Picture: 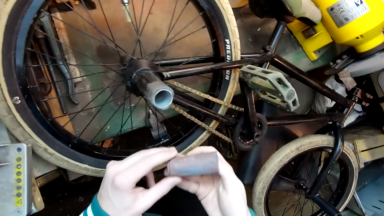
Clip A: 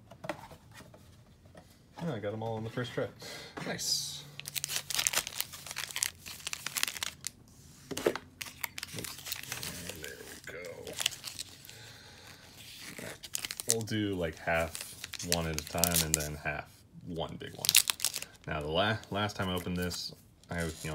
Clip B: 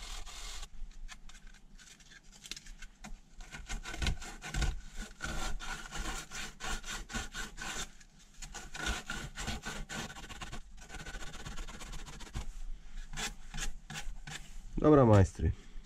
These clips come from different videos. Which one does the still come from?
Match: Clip B